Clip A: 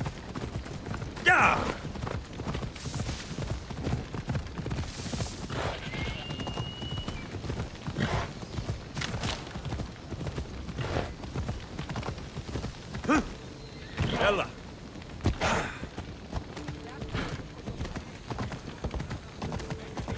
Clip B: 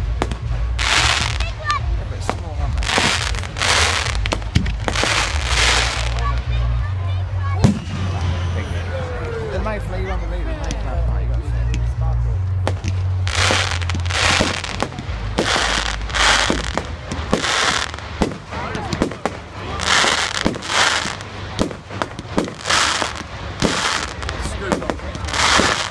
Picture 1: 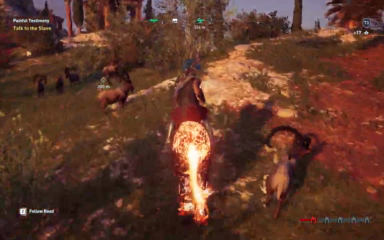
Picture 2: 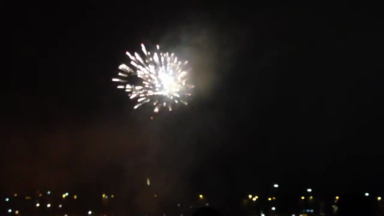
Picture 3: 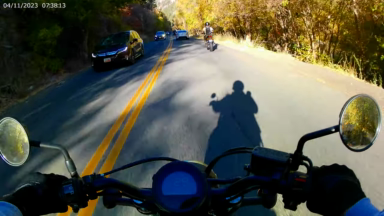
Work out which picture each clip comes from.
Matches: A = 1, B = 2